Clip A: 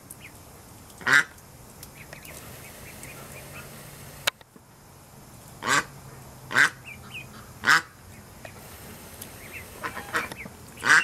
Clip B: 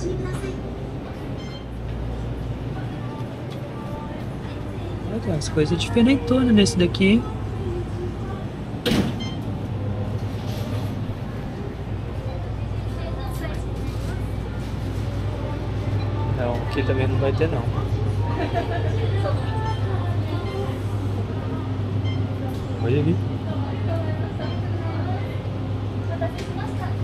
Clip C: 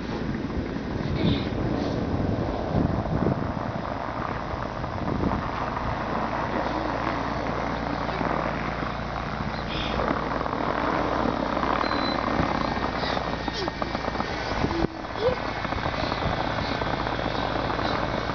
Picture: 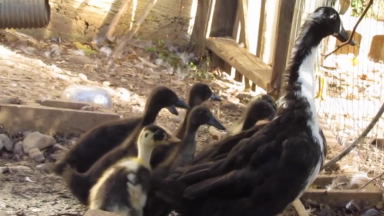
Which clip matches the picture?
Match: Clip A